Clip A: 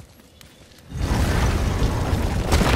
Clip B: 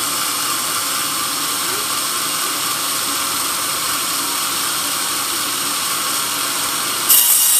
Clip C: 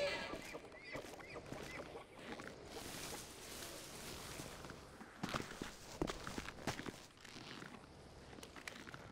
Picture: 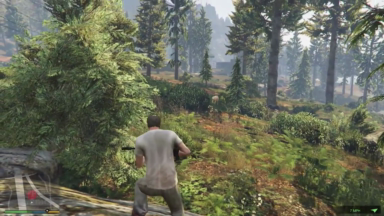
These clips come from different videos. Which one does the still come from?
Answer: C